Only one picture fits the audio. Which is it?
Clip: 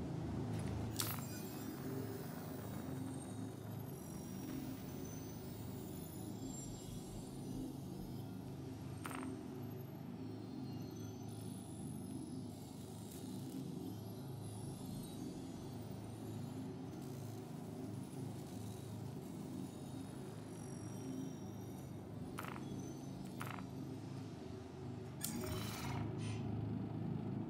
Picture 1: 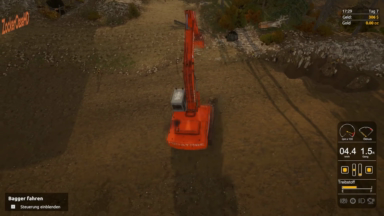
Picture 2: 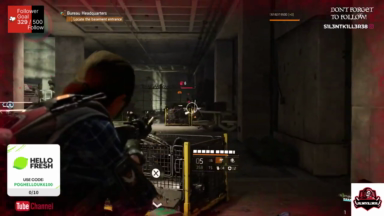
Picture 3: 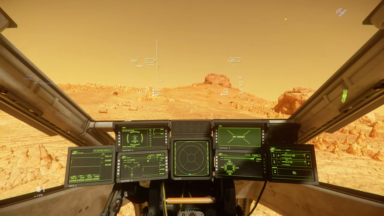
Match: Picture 3